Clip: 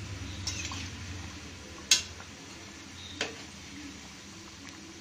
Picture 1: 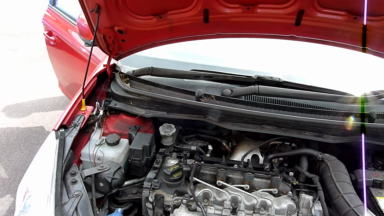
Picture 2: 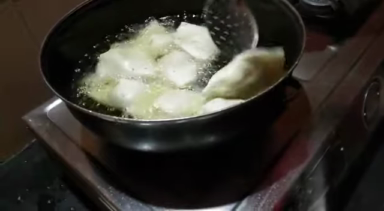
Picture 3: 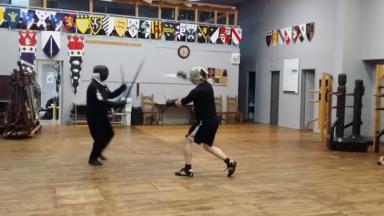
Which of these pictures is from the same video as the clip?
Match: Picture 2